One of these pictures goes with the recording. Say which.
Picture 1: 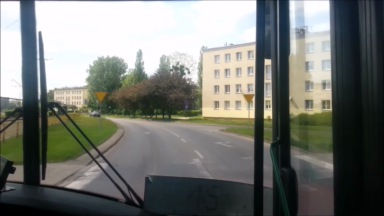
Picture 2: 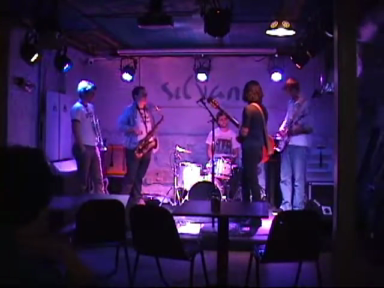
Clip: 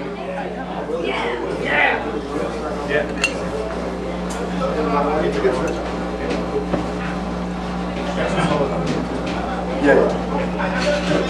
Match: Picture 2